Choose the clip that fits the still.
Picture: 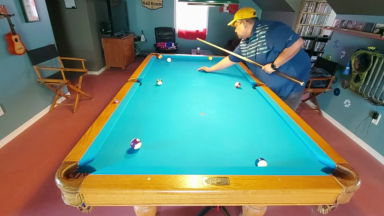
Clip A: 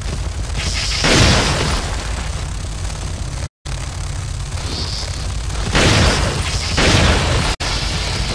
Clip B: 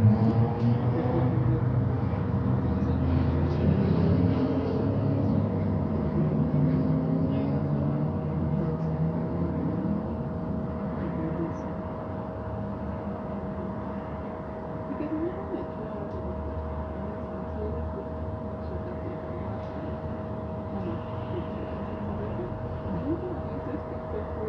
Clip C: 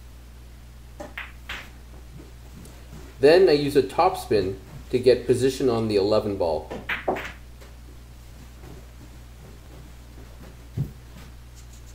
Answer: C